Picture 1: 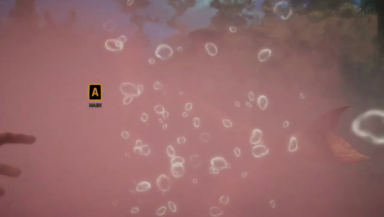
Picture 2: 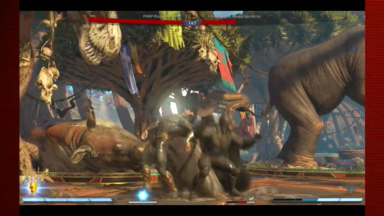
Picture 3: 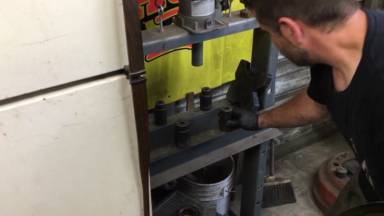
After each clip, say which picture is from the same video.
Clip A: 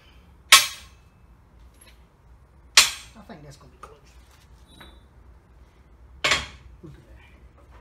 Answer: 3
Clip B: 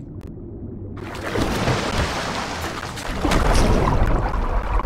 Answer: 1